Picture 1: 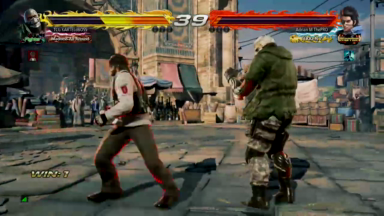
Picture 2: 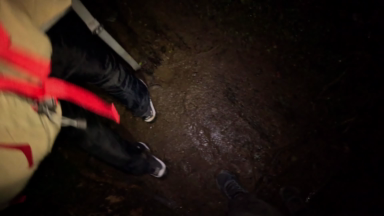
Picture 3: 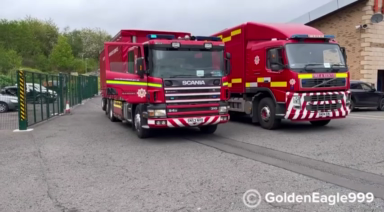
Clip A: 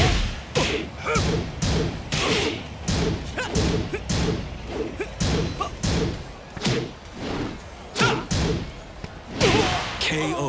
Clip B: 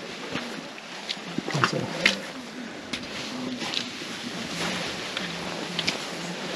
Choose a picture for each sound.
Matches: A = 1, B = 2